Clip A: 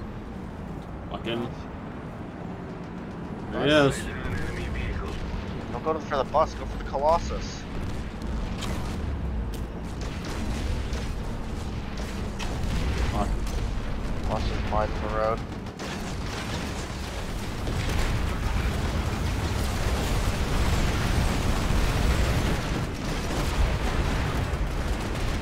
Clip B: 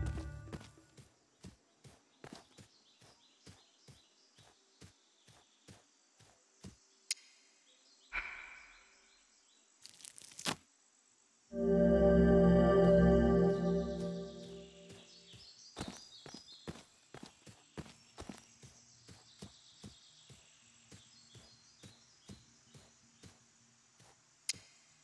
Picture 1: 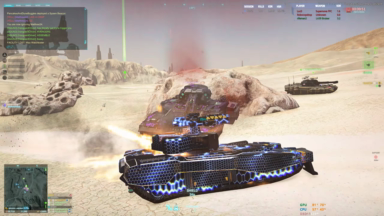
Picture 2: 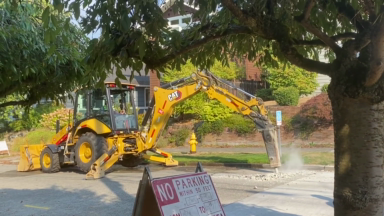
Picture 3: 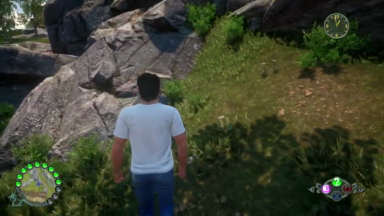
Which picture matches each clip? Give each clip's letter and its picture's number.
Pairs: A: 1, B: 3